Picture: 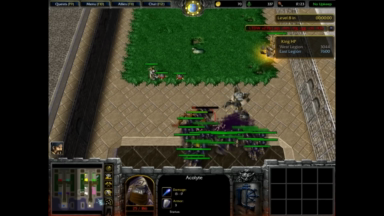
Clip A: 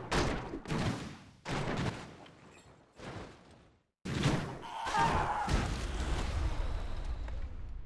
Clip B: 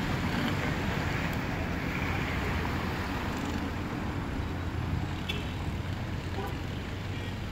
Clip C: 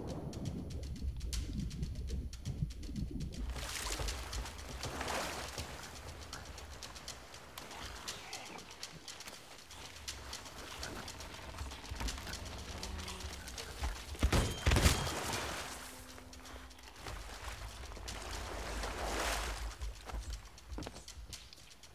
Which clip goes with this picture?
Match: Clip A